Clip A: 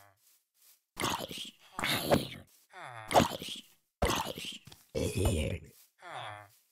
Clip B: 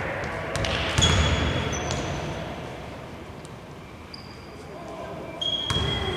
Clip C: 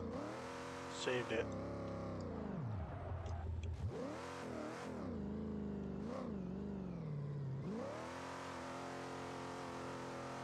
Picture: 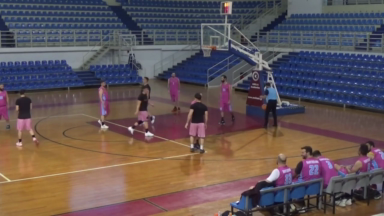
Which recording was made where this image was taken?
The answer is B